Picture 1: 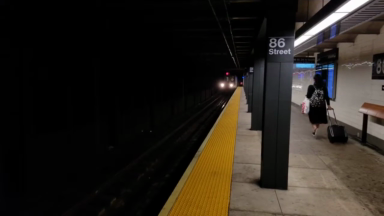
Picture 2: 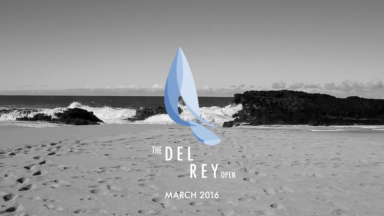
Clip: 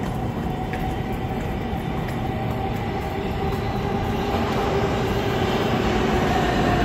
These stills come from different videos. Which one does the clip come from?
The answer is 1